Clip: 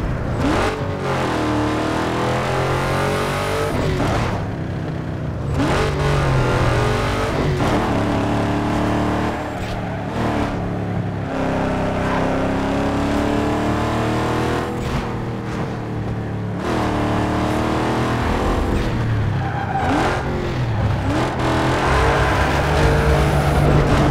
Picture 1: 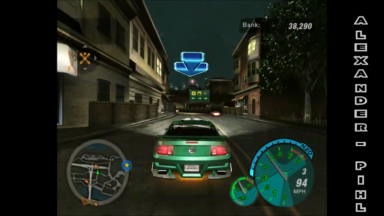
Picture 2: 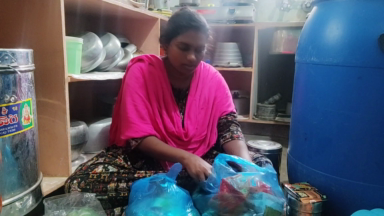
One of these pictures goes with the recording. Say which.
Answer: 1